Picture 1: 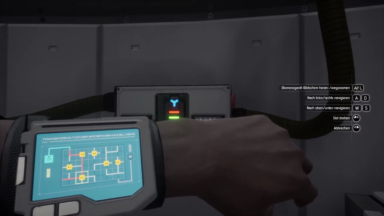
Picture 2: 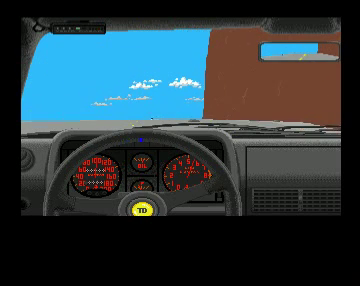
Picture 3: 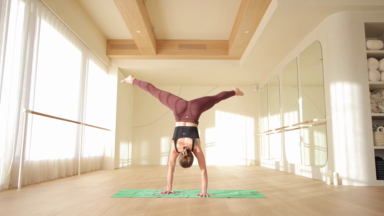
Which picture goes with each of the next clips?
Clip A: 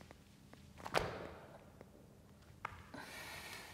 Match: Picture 3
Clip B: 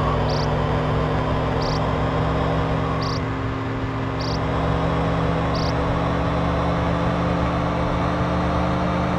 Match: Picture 2